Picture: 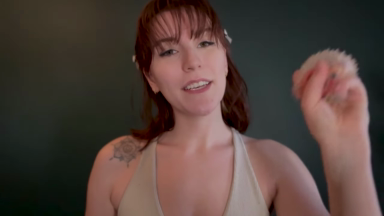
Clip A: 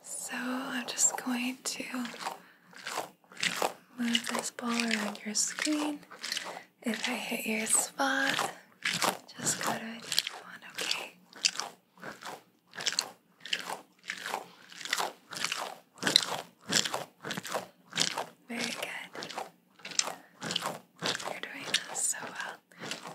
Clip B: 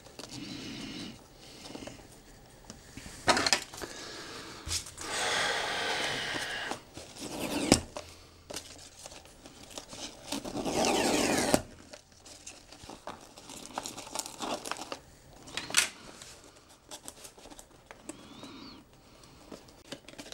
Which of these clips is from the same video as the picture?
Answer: A